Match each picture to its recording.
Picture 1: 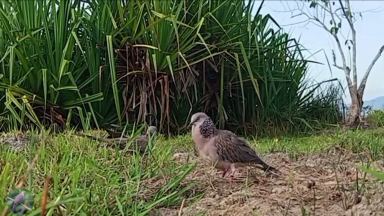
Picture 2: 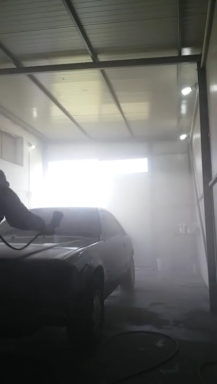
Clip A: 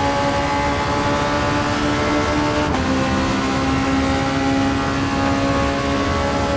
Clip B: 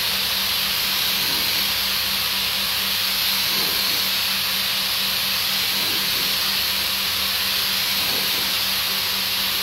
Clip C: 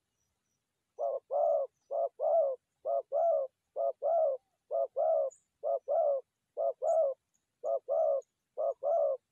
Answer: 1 C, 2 B